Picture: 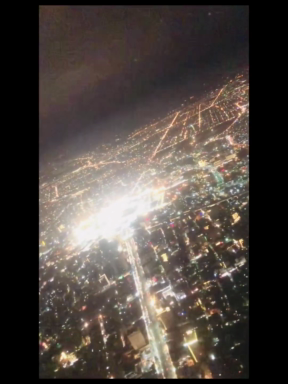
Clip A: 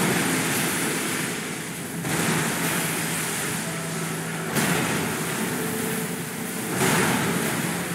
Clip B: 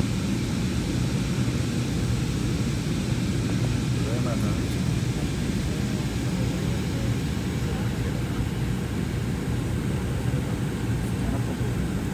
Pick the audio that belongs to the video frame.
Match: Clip B